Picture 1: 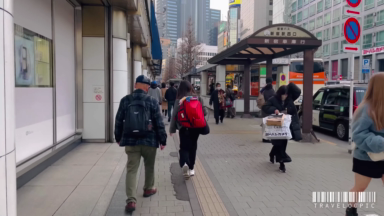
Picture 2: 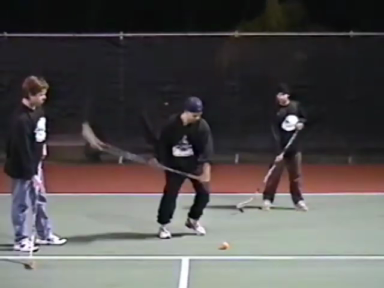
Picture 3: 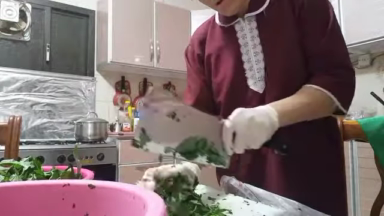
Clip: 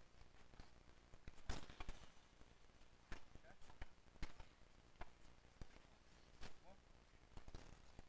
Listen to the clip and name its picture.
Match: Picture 2